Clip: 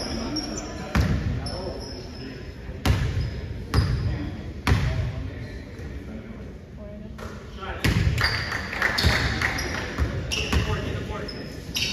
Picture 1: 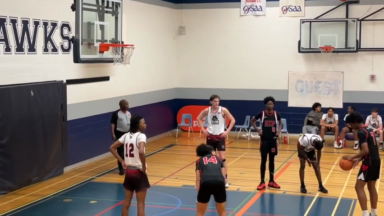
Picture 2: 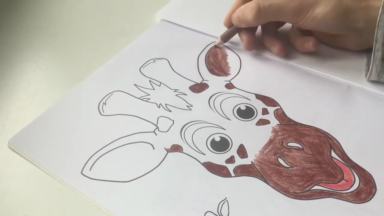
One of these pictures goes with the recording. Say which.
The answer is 1